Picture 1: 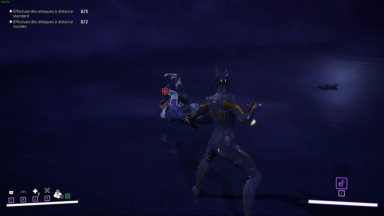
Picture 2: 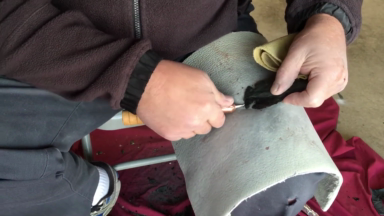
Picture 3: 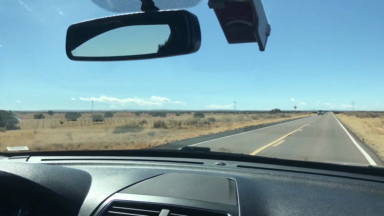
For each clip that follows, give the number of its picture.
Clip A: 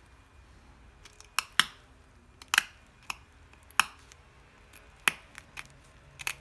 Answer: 2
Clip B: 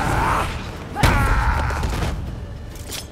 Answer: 1